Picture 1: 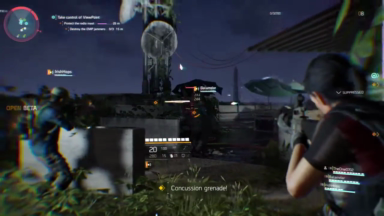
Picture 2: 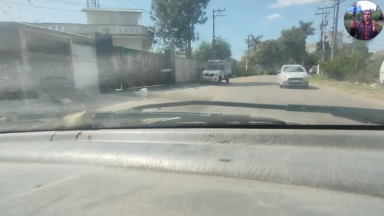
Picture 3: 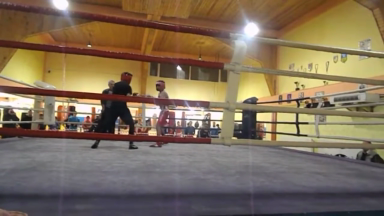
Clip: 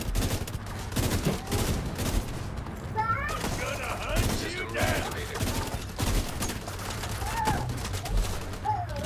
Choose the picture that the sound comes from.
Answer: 1